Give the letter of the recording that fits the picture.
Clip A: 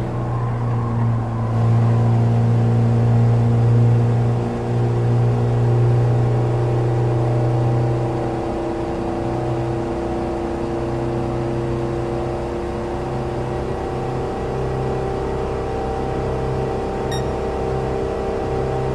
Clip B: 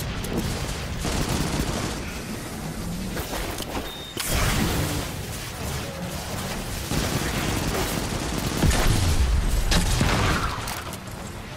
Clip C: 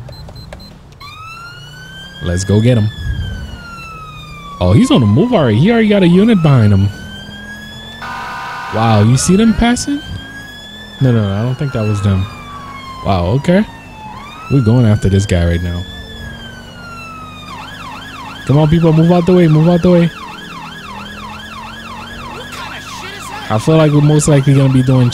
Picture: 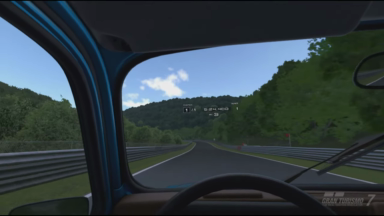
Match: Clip A